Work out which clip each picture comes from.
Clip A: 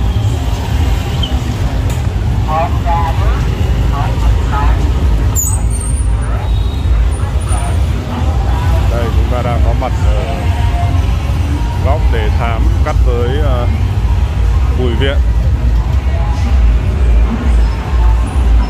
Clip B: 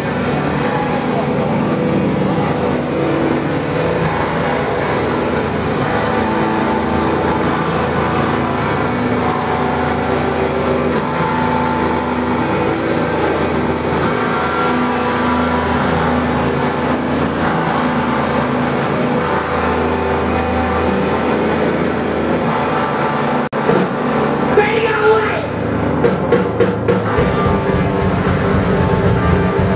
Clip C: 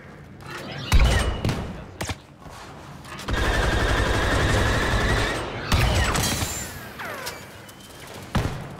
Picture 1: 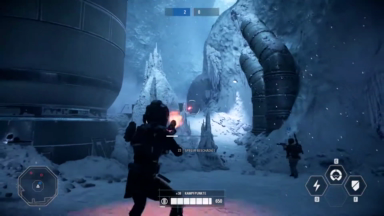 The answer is C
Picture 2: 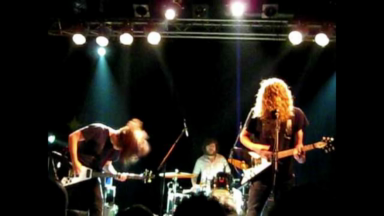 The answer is B